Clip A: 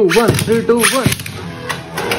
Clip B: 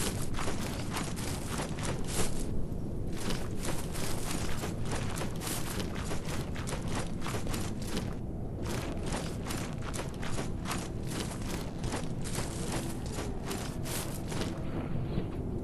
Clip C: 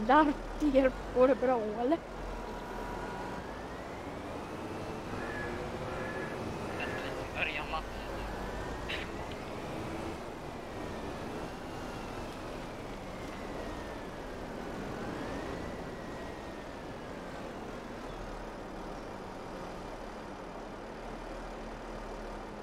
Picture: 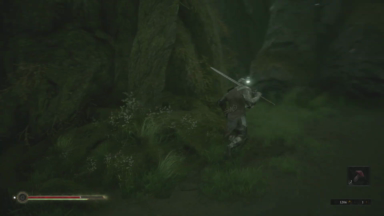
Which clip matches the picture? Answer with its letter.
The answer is B